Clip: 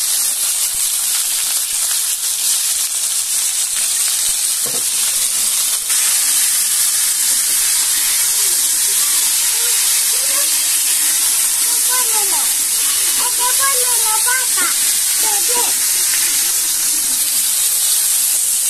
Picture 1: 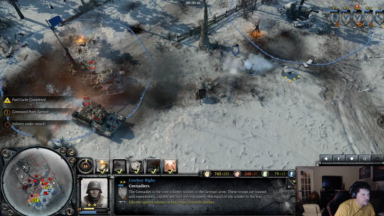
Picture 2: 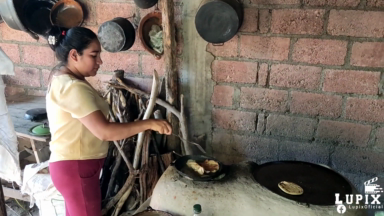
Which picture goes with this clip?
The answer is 2